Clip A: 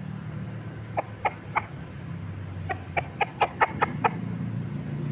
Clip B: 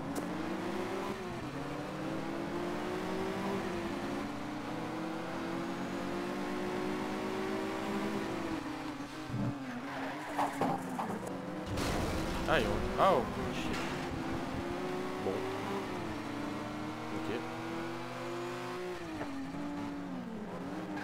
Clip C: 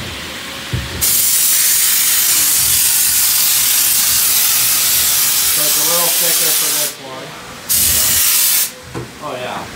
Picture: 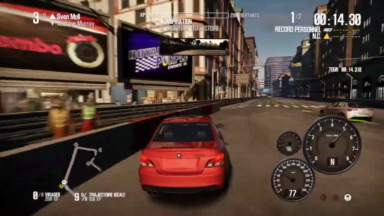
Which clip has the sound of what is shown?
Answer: B